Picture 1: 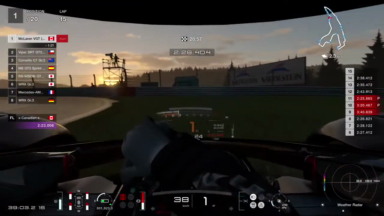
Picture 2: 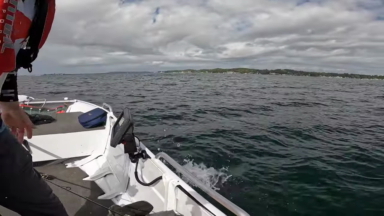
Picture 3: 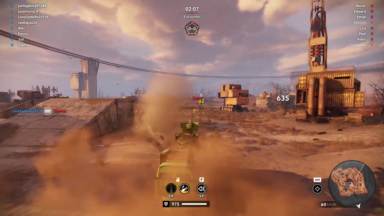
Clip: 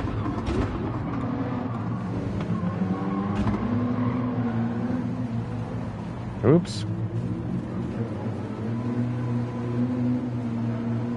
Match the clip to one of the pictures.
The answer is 1